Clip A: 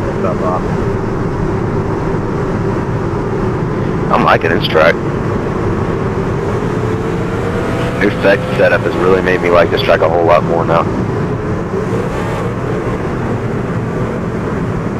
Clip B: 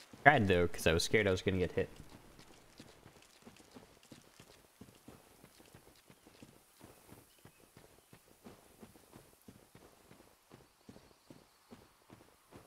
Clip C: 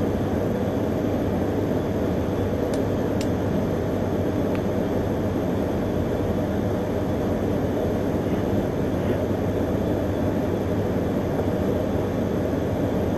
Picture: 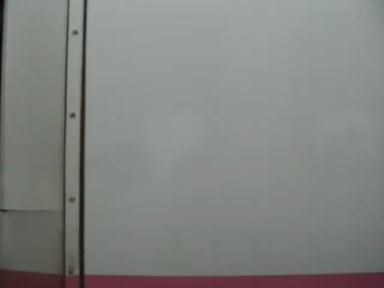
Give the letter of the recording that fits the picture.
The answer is C